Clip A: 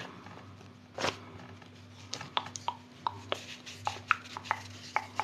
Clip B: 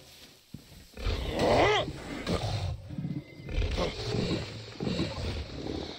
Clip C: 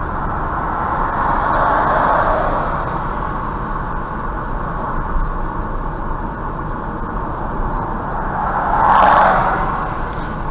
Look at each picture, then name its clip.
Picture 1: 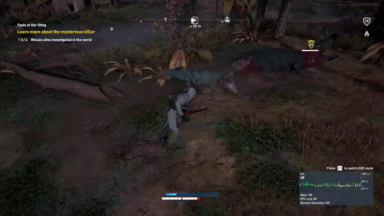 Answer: B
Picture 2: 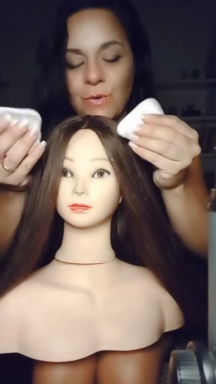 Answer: A